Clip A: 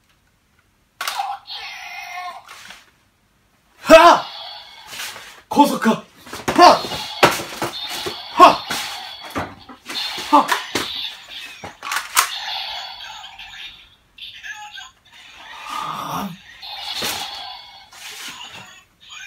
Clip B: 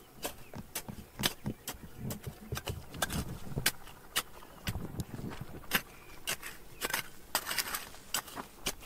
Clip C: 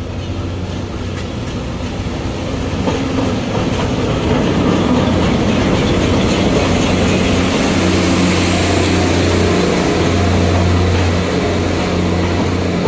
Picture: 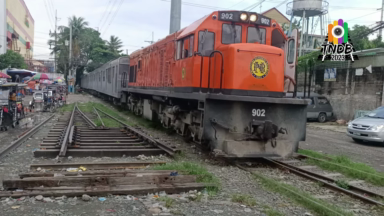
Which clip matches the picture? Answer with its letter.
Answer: C